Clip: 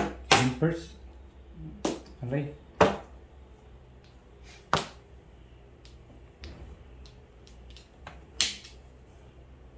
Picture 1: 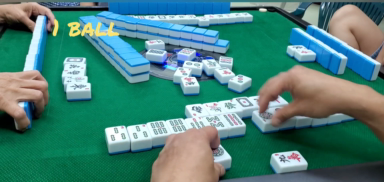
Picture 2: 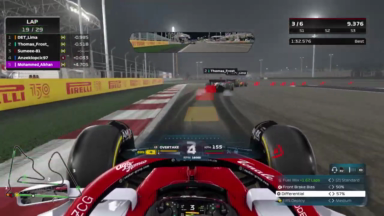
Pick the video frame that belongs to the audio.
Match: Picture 1